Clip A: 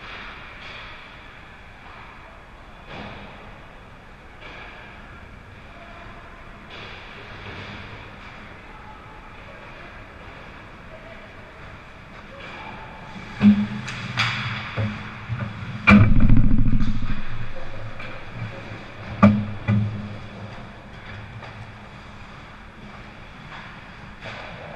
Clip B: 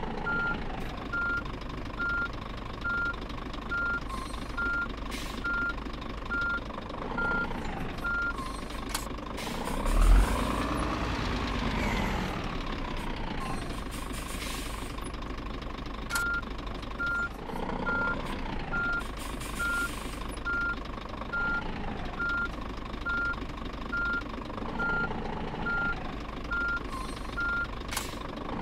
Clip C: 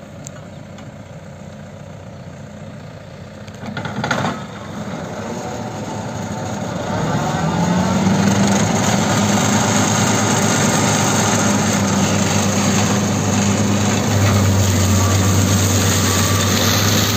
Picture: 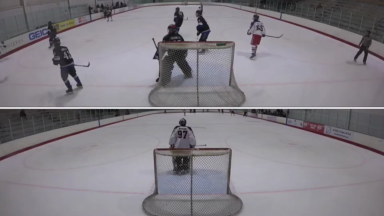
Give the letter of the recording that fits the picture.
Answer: A